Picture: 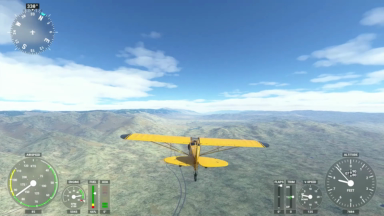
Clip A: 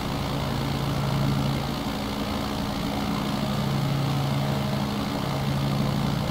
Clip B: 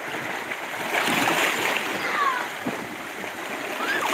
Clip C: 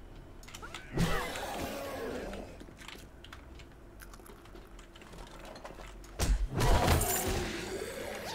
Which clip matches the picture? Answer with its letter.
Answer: A